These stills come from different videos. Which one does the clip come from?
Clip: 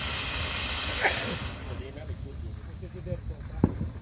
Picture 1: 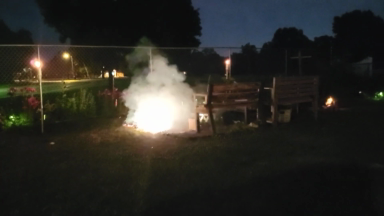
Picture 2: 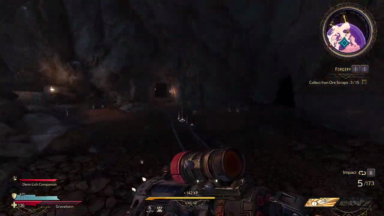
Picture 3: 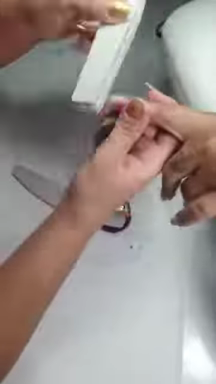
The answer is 1